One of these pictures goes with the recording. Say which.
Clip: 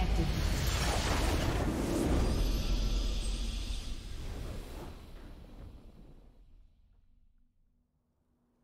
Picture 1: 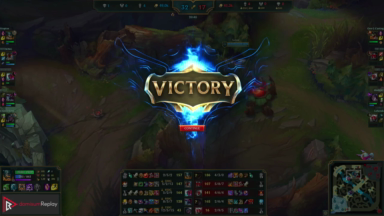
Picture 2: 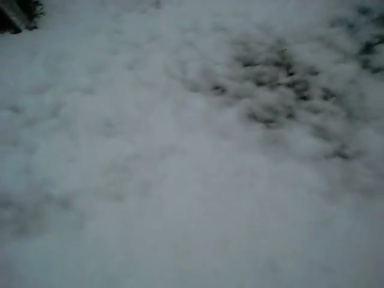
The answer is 1